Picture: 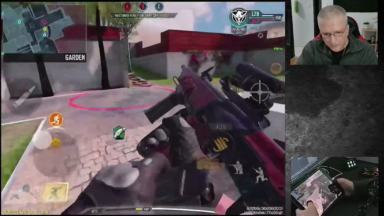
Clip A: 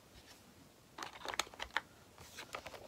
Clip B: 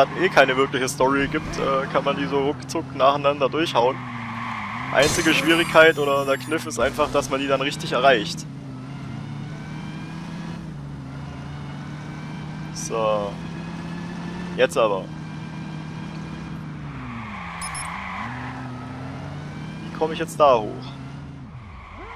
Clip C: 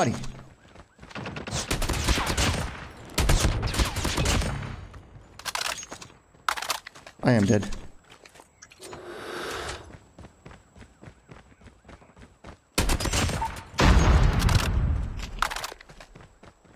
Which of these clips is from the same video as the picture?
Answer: C